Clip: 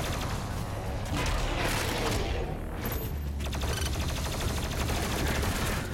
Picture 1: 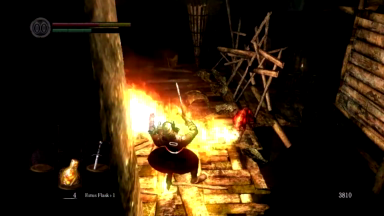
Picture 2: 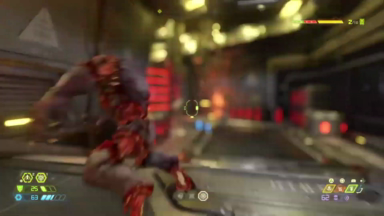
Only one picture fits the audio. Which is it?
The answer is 2